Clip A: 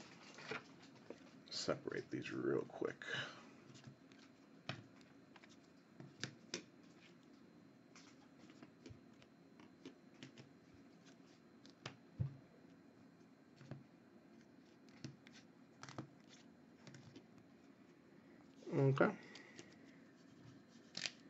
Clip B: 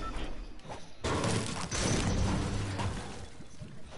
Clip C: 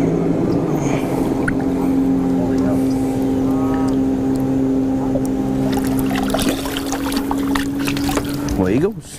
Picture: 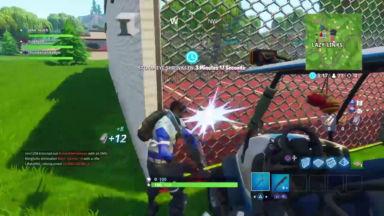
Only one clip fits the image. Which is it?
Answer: B